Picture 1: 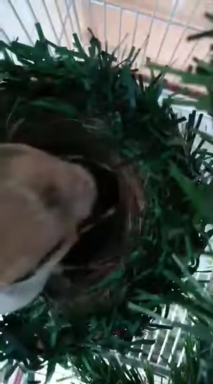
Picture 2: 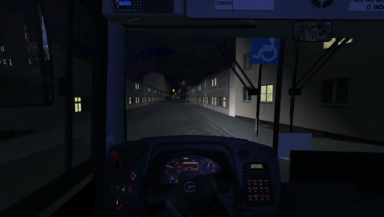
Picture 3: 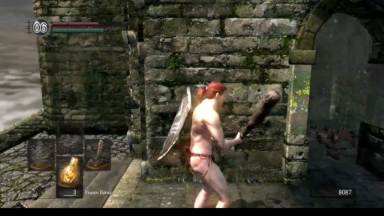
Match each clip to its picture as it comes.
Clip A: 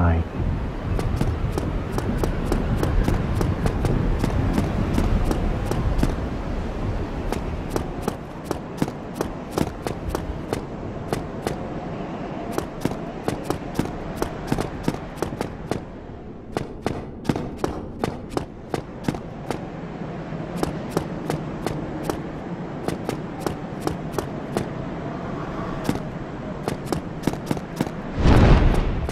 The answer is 3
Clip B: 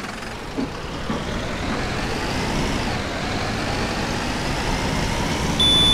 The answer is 2